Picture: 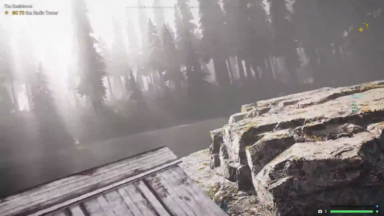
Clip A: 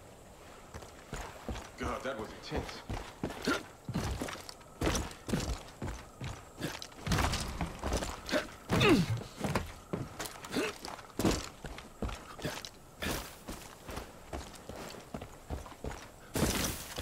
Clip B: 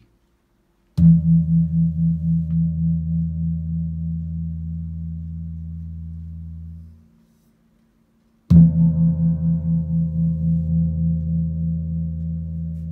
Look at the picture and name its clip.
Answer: A